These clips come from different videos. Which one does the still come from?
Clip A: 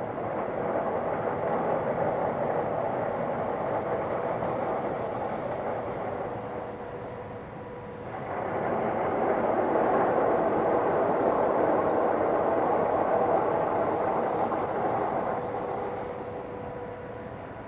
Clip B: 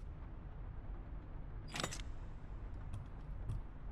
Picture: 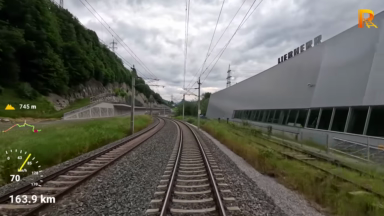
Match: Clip A